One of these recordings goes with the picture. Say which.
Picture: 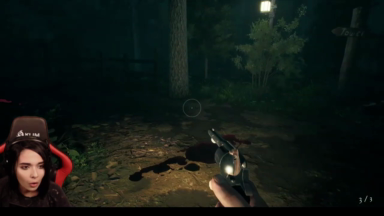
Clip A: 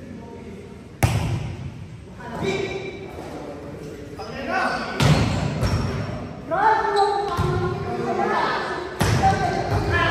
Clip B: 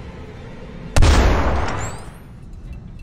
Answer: B